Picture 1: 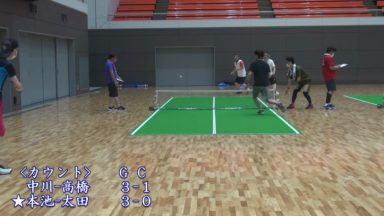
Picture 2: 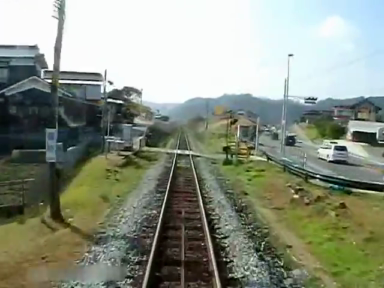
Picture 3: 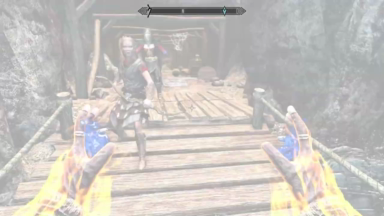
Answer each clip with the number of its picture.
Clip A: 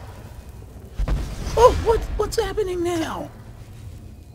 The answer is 3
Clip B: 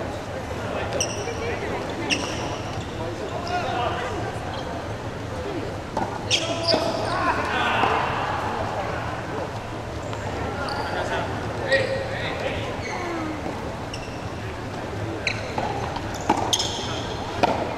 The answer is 1